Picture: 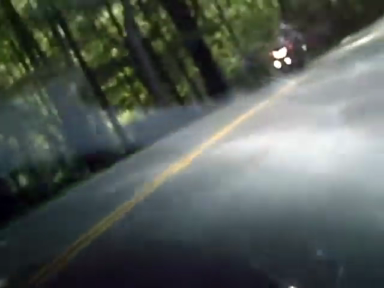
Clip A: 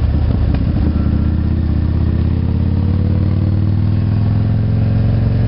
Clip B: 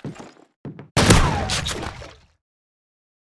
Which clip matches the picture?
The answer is A